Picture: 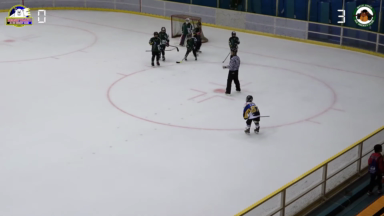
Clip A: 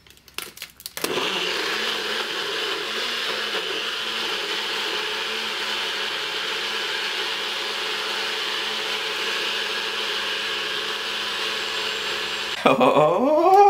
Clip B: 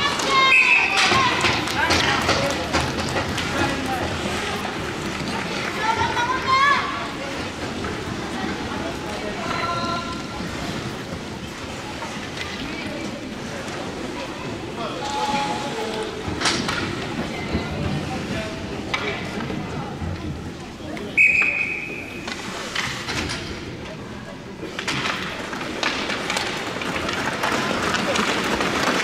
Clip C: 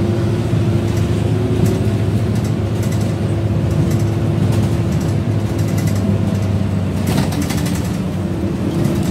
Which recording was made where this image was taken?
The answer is B